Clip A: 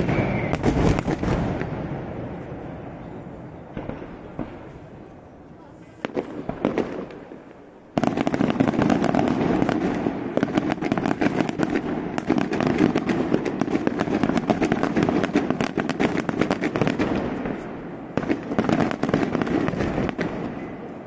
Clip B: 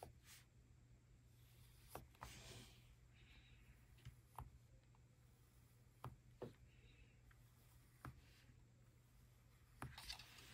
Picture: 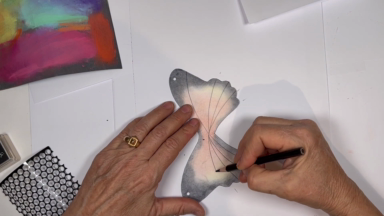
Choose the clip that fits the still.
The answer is B